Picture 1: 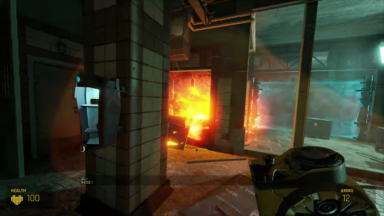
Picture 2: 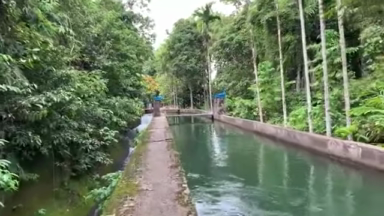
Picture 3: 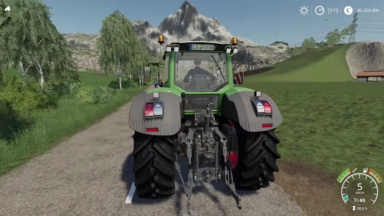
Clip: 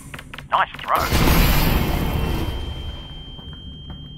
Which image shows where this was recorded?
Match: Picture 1